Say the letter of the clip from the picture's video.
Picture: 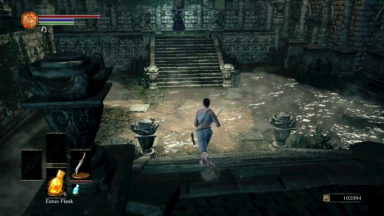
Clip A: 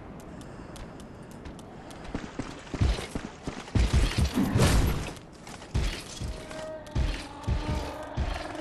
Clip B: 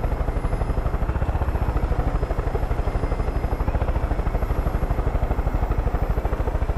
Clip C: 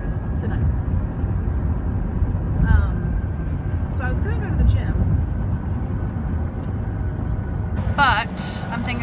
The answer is A